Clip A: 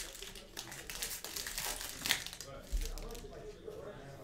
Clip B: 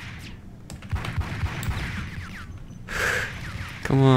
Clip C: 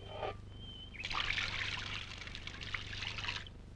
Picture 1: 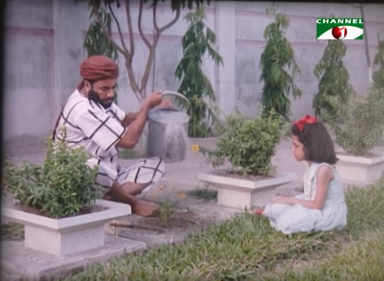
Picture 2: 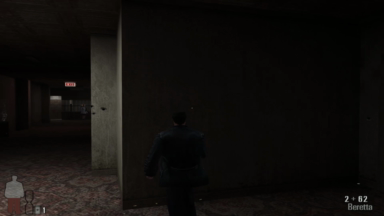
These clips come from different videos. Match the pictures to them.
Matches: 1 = C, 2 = B